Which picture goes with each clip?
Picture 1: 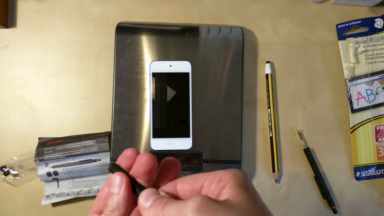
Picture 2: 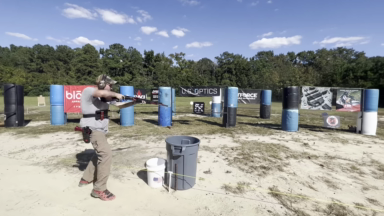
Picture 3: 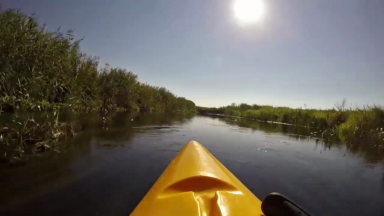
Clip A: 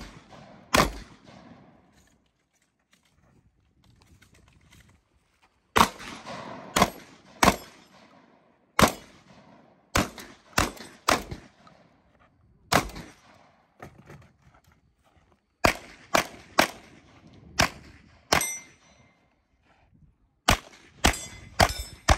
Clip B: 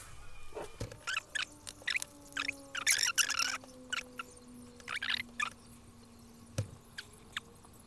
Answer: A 2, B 1